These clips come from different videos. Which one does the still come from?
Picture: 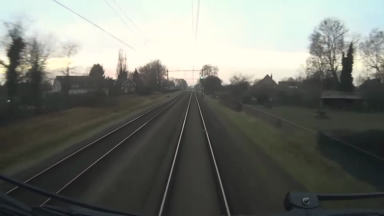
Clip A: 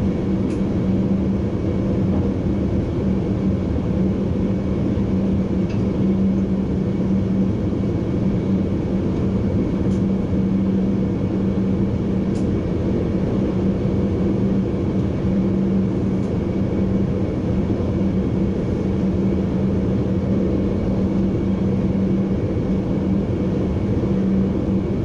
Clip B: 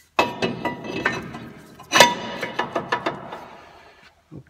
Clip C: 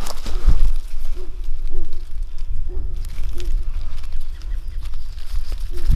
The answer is A